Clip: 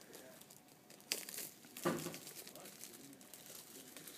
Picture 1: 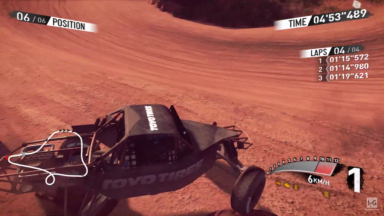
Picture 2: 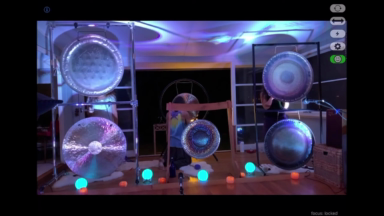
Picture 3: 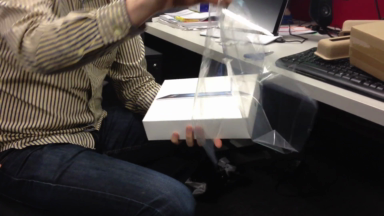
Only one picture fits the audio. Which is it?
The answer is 3